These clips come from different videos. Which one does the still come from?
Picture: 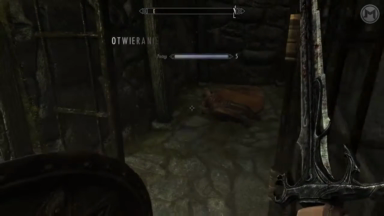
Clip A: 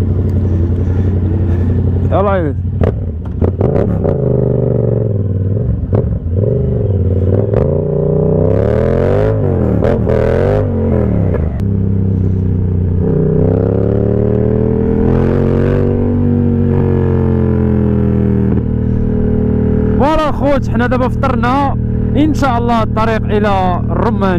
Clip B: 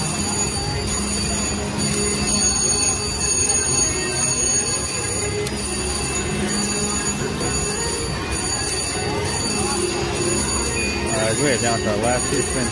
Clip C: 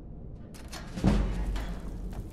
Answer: C